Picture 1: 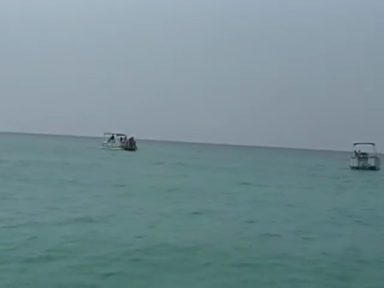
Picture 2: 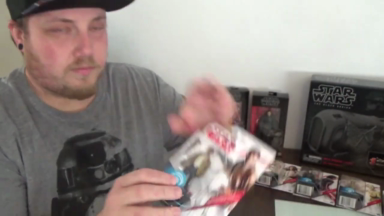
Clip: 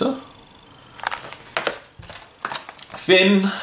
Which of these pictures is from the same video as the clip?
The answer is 2